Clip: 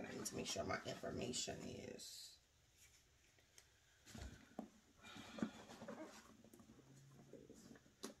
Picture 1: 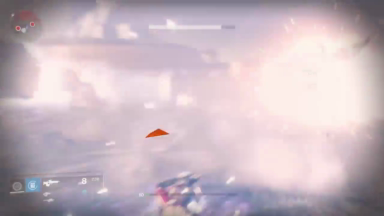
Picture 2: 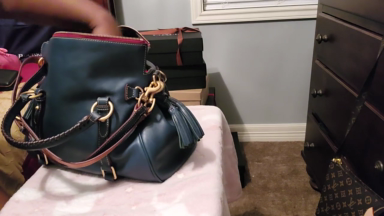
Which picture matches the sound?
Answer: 2